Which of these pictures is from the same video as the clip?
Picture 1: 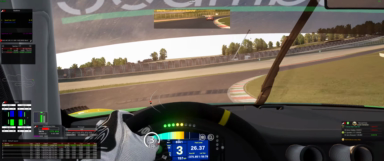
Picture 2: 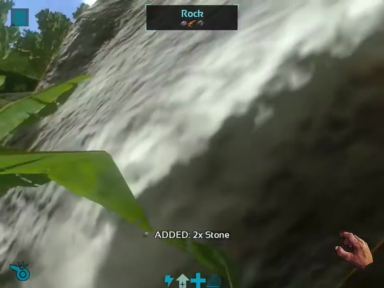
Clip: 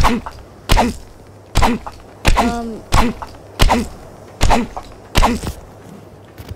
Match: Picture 2